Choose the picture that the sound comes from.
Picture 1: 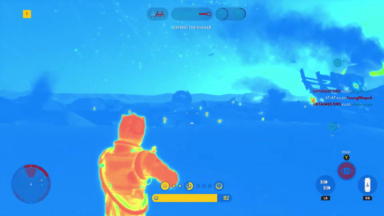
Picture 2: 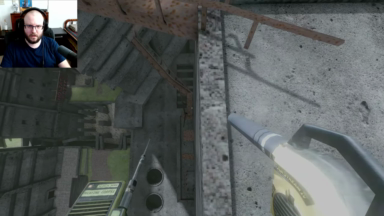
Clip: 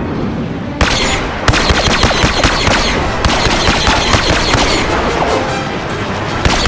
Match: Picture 1